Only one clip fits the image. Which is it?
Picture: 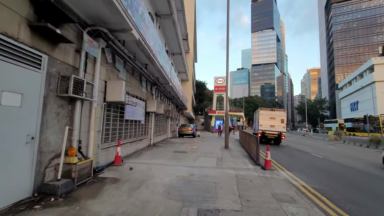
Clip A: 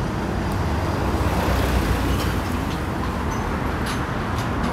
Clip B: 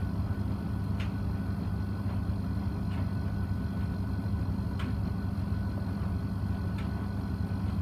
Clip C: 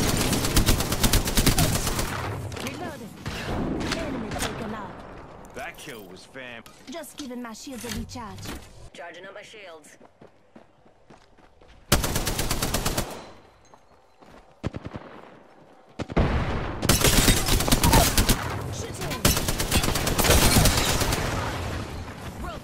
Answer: A